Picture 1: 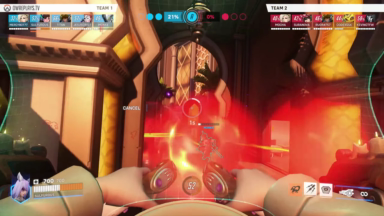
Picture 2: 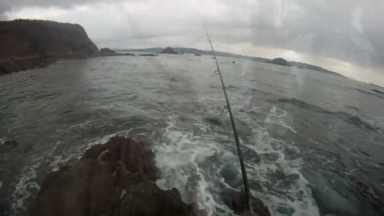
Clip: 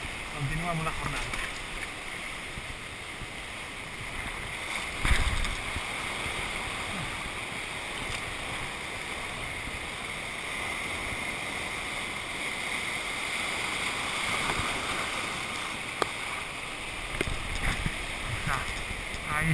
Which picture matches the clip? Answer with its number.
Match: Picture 2